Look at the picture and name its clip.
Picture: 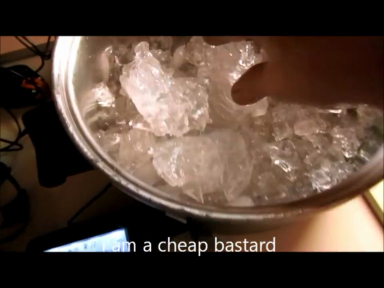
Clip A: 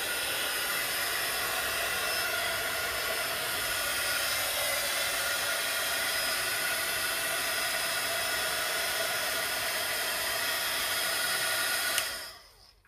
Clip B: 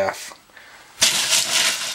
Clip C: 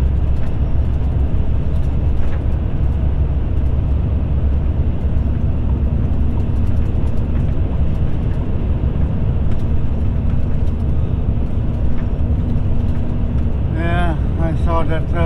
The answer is B